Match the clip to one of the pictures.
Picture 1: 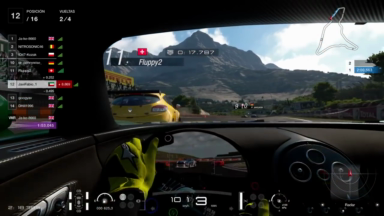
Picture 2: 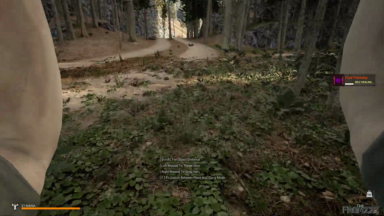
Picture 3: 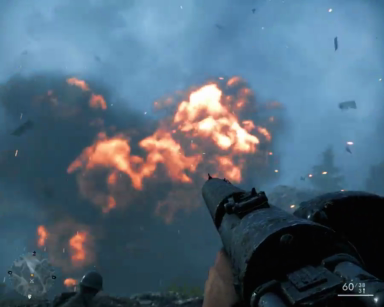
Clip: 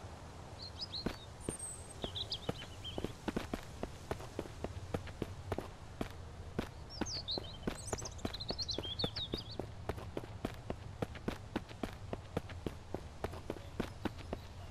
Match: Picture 2